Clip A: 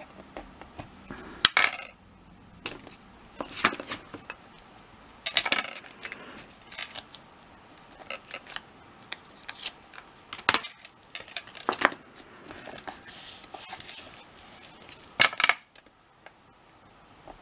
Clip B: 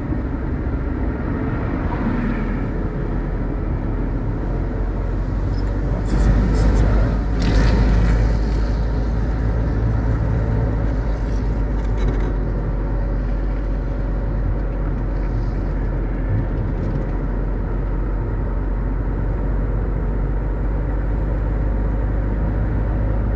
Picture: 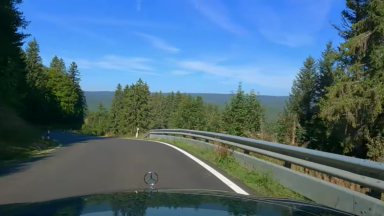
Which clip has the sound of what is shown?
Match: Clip B